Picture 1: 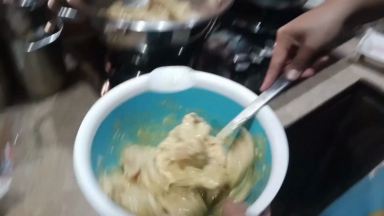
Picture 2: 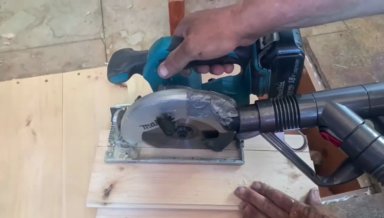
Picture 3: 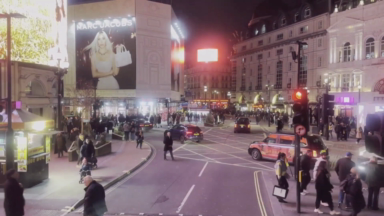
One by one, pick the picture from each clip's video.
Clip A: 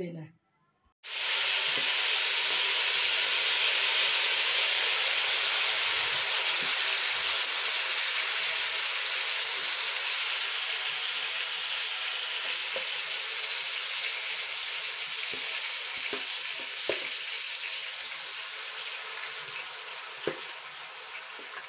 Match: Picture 1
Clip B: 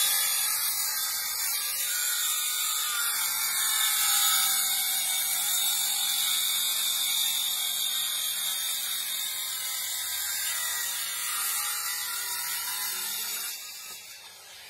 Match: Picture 2